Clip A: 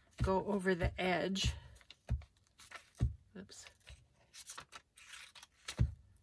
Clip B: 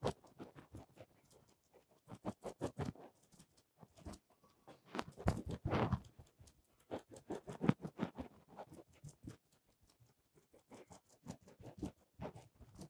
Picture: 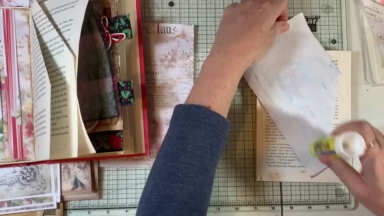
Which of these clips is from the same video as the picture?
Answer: A